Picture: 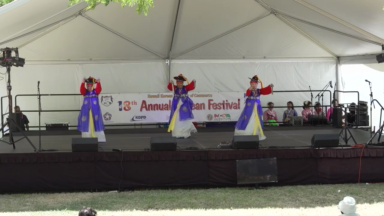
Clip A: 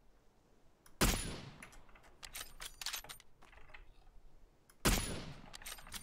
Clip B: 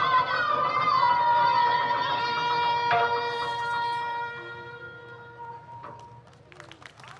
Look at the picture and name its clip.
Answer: B